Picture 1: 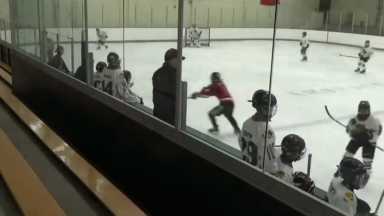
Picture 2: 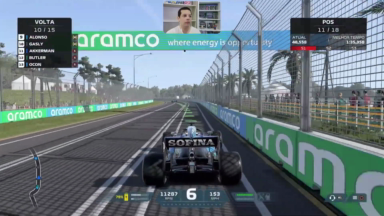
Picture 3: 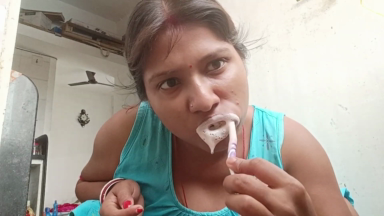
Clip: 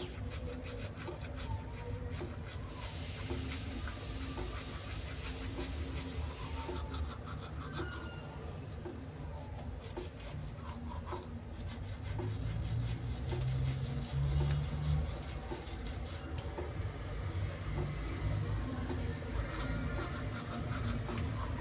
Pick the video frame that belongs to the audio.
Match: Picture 3